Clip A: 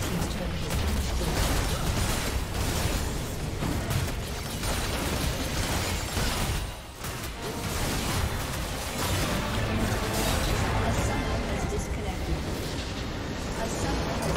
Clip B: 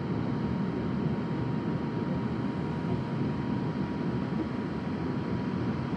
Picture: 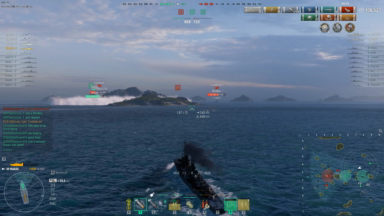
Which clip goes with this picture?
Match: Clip B